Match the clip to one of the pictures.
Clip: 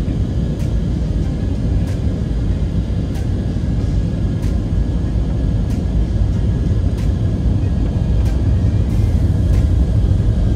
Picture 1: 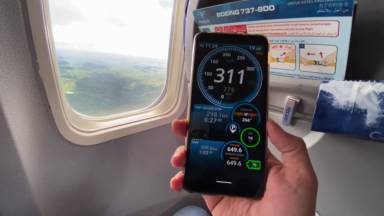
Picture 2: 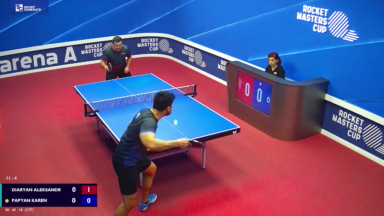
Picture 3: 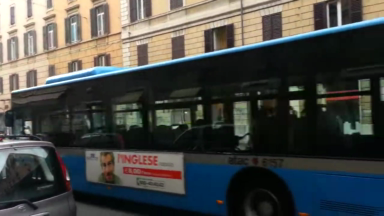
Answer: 1